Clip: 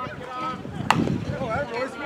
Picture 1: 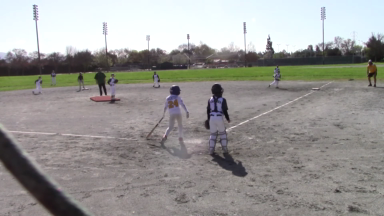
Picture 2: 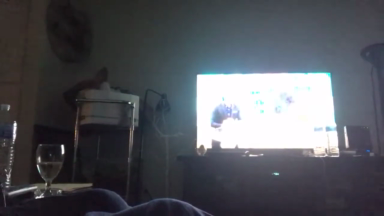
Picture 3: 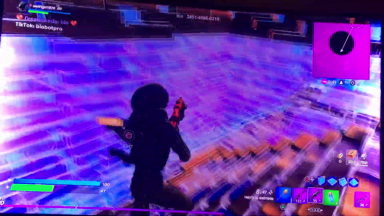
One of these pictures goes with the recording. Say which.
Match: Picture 1